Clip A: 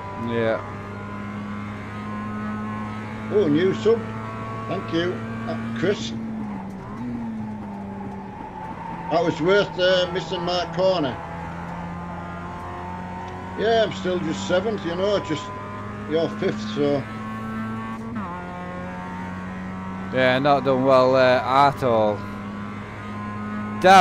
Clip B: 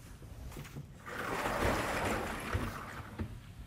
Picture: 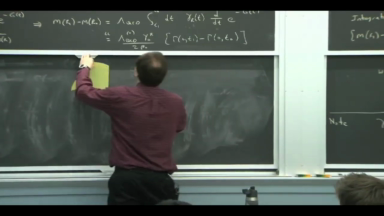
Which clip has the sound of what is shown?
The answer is B